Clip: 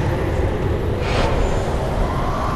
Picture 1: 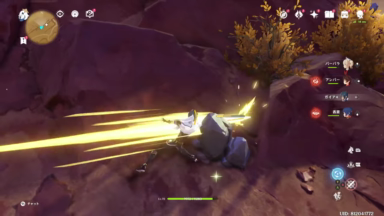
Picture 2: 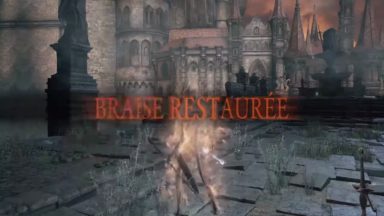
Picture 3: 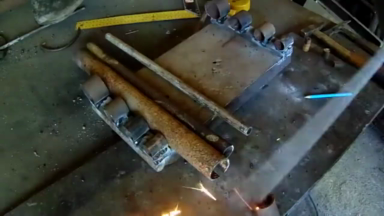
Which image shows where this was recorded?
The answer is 2